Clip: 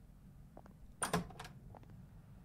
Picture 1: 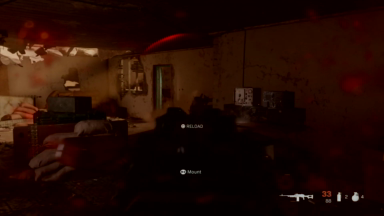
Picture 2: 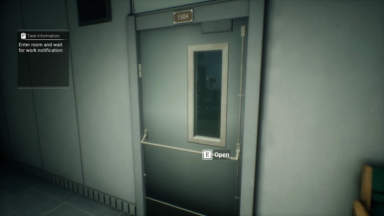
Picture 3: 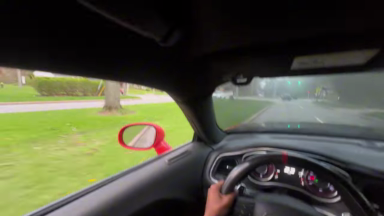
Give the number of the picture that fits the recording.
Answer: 2